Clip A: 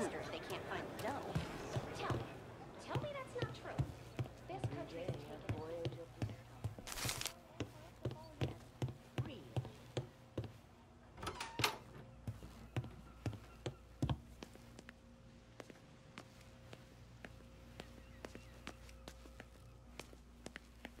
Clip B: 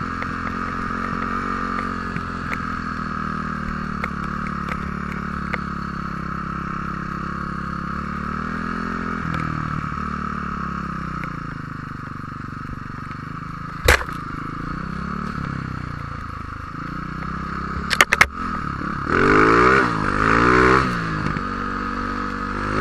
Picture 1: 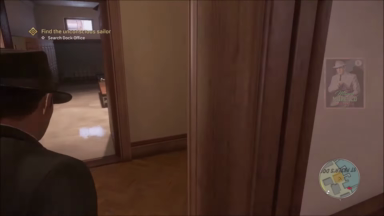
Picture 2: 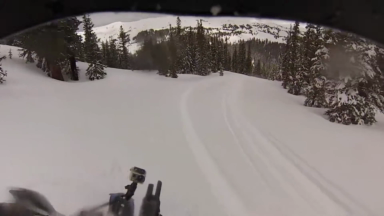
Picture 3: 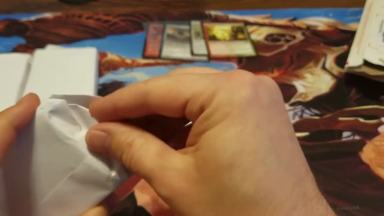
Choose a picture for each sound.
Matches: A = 1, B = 2